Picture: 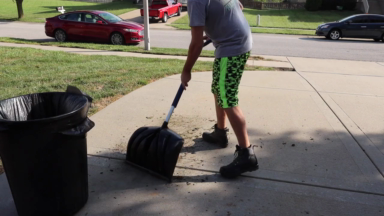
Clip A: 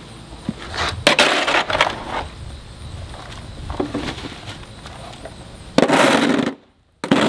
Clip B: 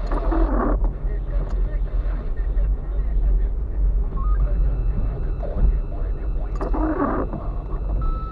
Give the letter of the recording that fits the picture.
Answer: A